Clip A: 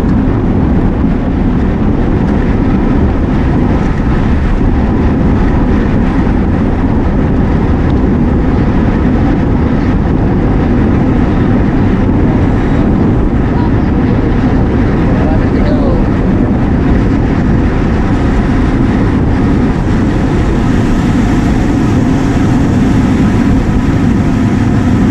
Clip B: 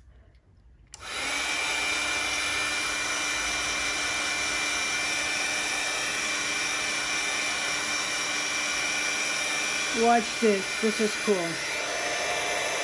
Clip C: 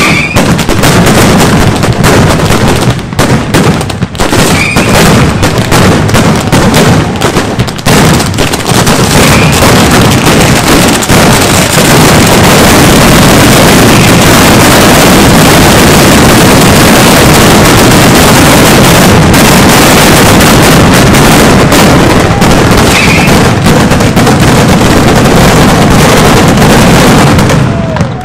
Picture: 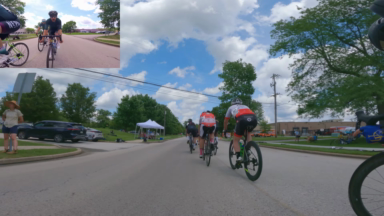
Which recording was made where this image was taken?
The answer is A